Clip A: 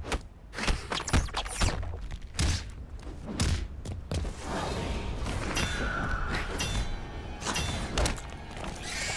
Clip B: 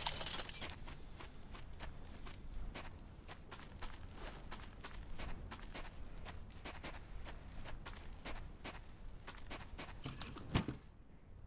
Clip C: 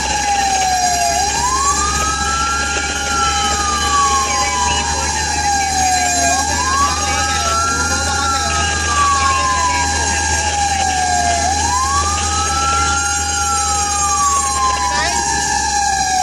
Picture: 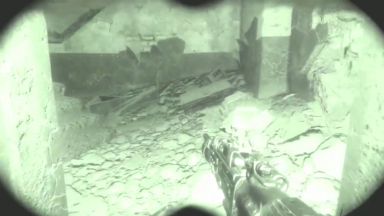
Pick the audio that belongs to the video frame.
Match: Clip B